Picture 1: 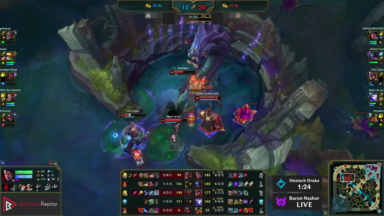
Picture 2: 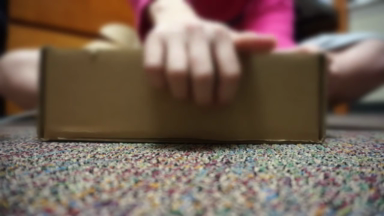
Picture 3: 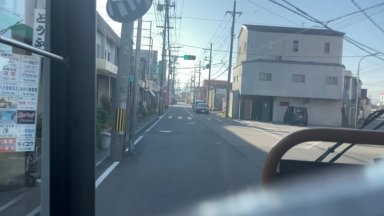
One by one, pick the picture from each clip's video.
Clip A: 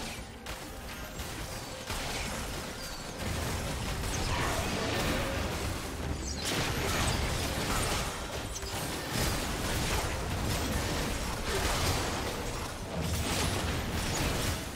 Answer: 1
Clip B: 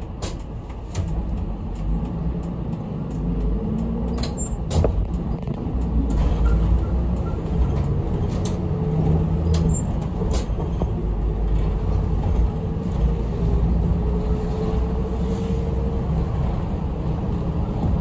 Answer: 3